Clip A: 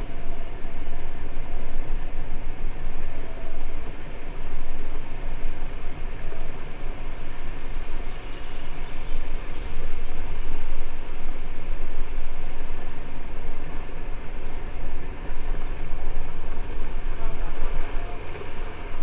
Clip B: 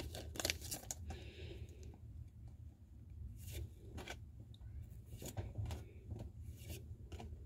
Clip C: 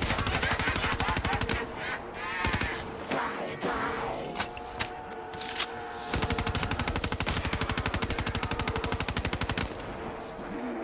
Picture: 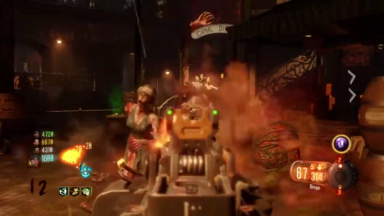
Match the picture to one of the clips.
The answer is C